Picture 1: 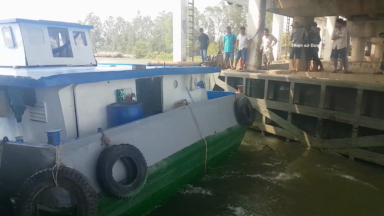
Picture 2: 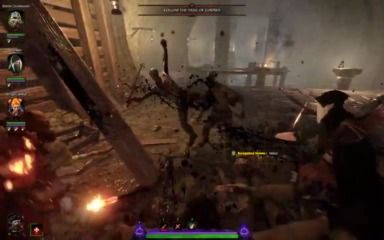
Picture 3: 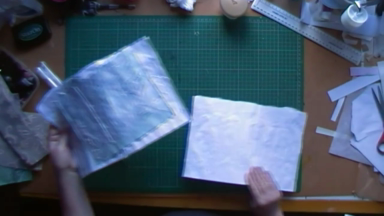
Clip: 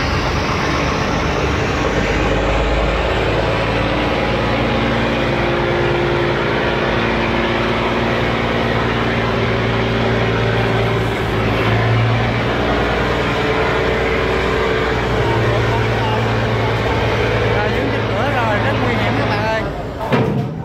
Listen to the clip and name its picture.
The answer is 1